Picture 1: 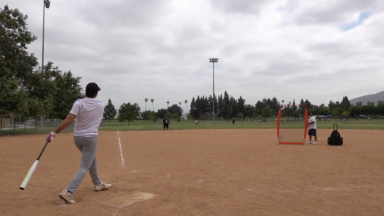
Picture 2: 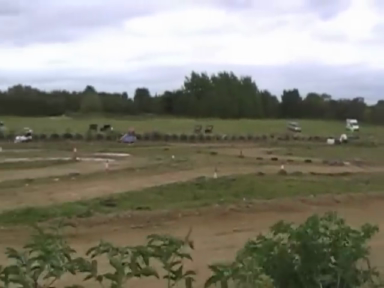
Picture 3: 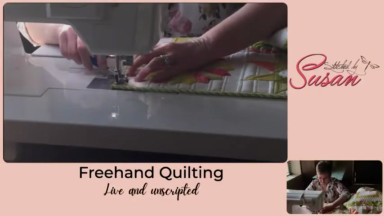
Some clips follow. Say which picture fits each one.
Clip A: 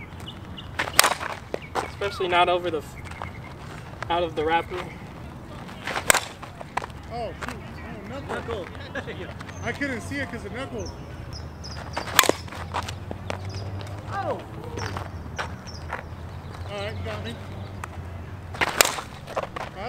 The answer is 1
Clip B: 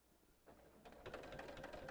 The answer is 3